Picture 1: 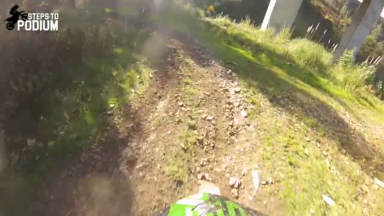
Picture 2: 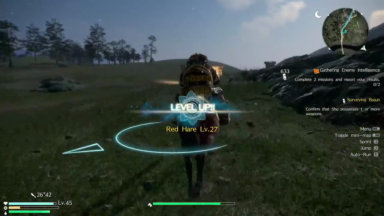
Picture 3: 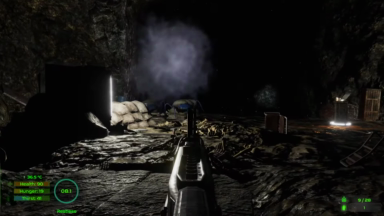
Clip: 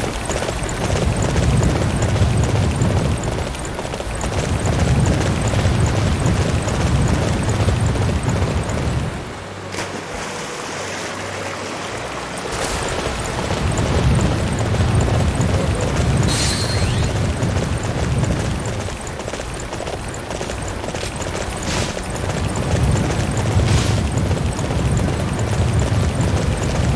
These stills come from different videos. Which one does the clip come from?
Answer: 2